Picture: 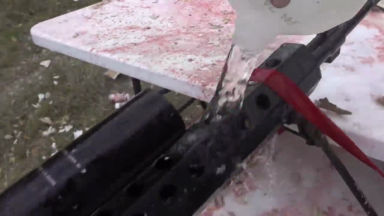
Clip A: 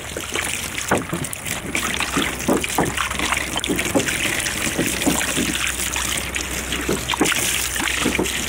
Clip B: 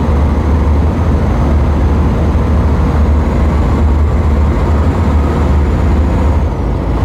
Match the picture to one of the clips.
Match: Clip A